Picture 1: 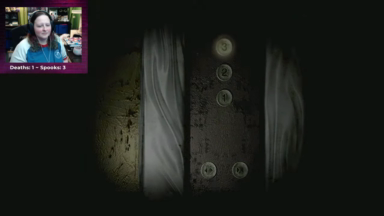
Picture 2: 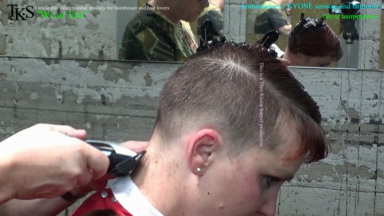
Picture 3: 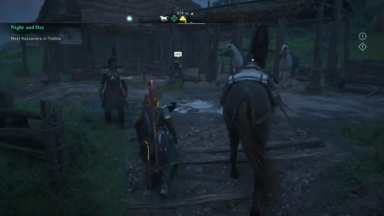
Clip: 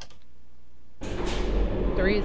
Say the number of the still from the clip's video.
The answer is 1